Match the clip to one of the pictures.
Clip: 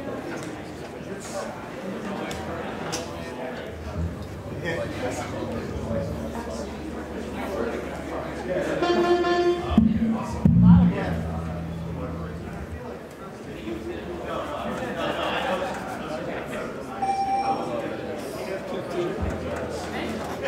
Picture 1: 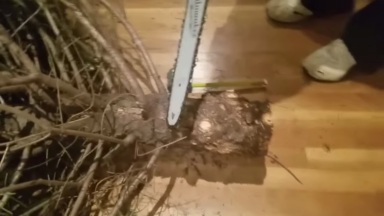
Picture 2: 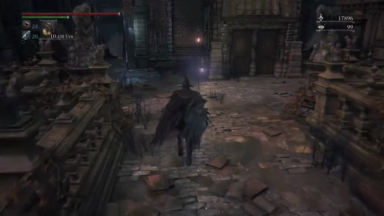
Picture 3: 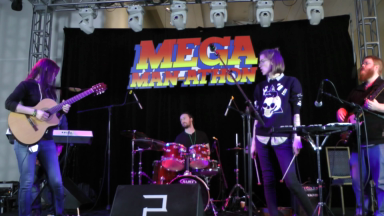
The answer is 3